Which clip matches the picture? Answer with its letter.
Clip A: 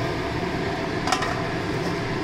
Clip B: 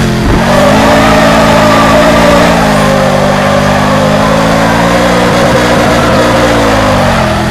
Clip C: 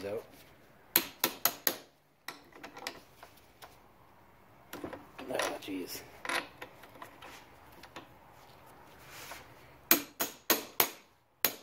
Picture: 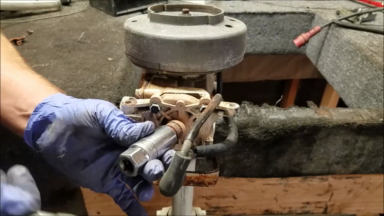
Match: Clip C